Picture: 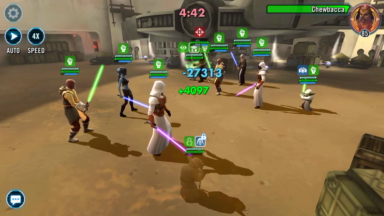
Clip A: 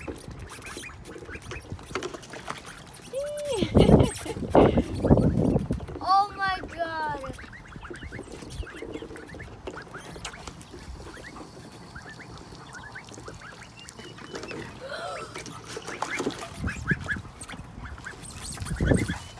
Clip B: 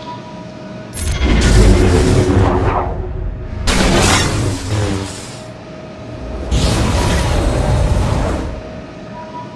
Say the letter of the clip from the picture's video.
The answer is B